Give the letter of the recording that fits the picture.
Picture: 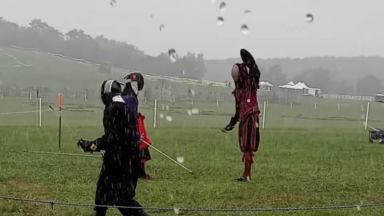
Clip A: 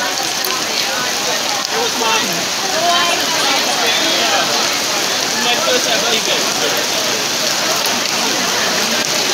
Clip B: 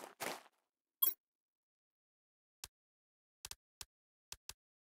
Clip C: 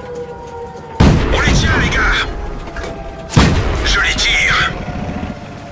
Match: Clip A